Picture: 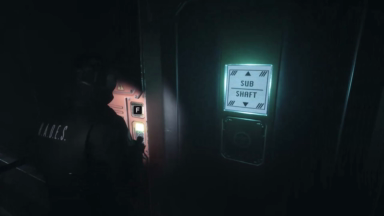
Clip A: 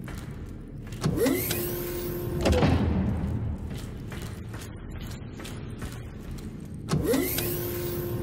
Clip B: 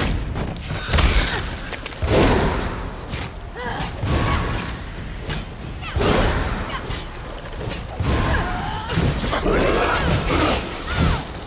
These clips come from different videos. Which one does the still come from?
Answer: A